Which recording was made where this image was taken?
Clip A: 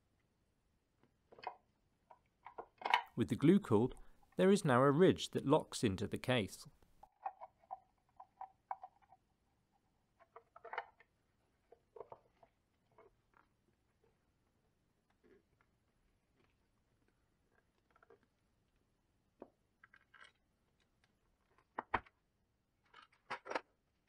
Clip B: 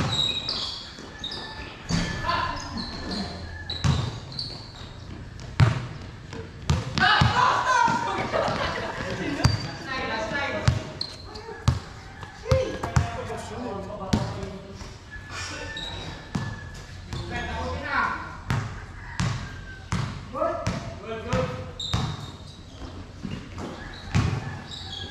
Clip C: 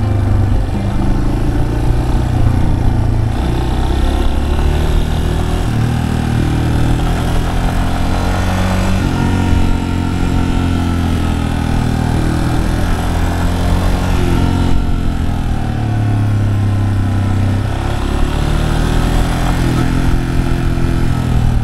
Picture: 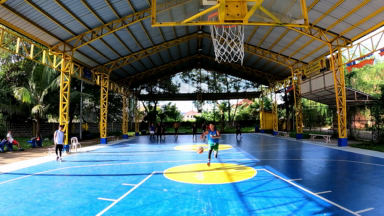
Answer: B